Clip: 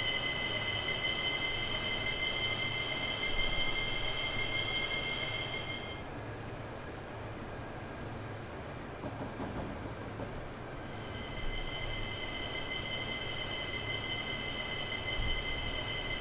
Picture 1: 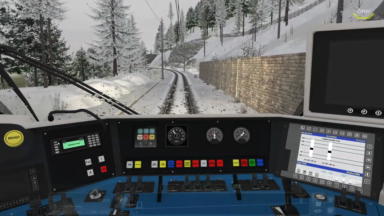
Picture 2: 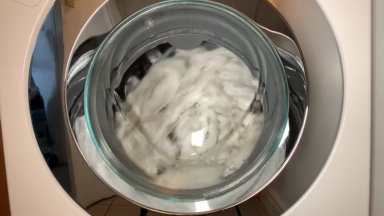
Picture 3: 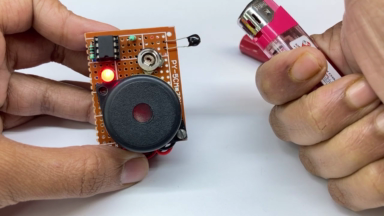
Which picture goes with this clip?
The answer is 1